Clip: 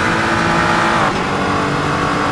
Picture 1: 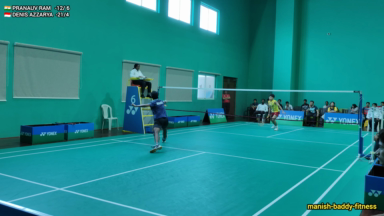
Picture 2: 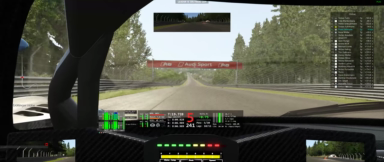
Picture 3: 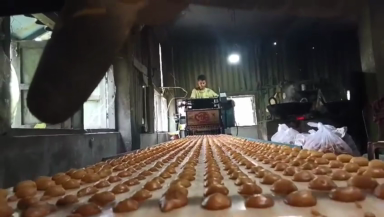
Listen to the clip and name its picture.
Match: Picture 2